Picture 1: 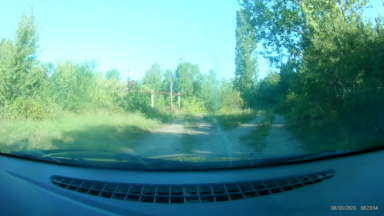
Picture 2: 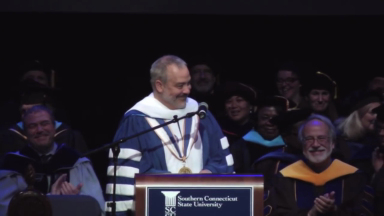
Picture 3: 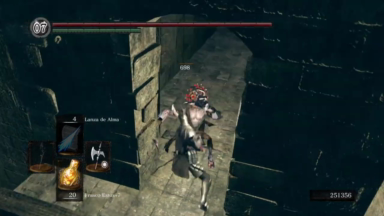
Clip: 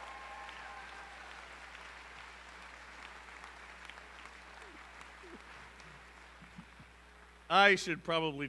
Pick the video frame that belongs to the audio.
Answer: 2